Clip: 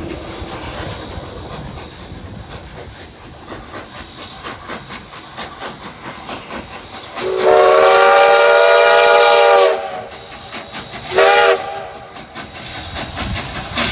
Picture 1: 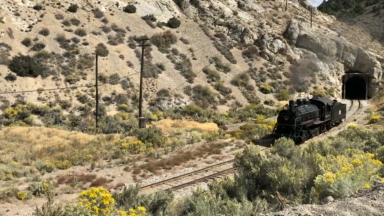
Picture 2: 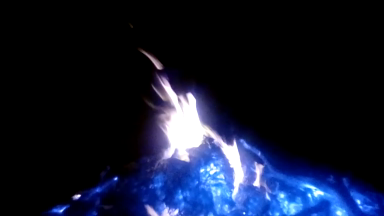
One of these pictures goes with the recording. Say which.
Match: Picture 1